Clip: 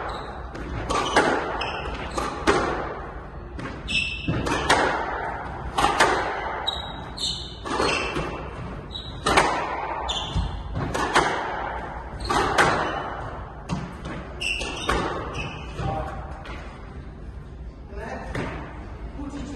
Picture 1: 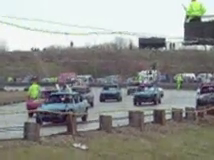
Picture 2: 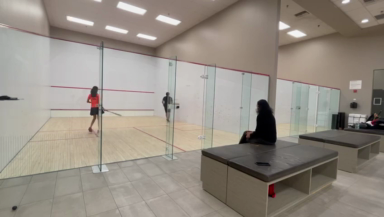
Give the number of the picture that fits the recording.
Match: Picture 2